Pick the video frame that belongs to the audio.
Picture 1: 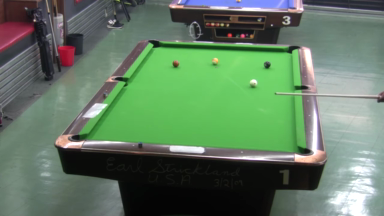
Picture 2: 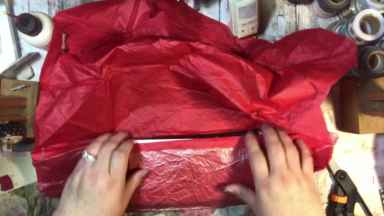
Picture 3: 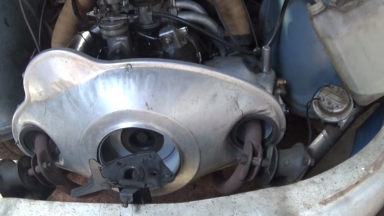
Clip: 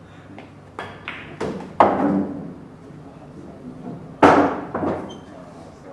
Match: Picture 1